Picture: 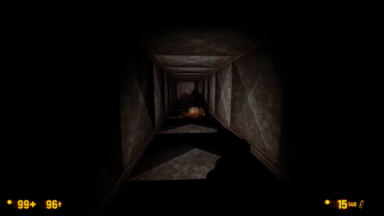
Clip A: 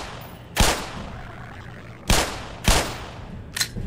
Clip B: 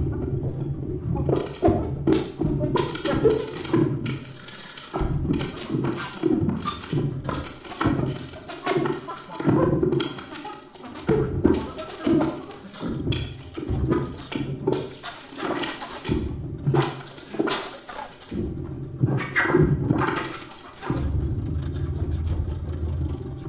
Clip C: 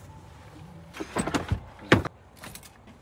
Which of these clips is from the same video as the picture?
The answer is A